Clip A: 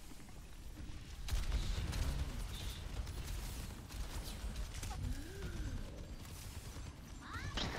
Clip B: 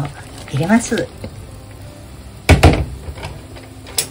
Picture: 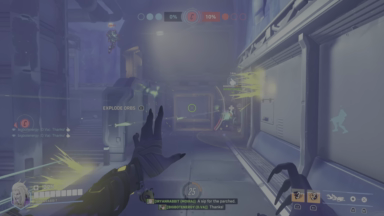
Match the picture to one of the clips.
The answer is A